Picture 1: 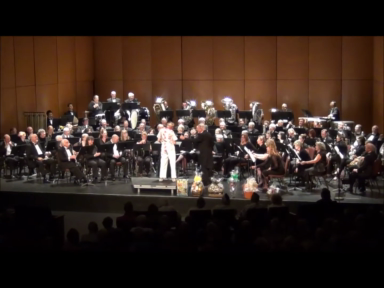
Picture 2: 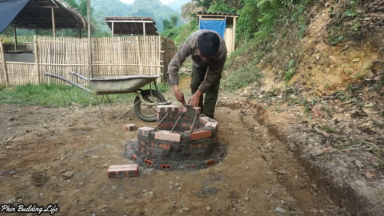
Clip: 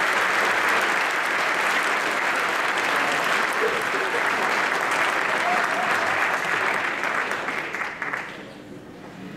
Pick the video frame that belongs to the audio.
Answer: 1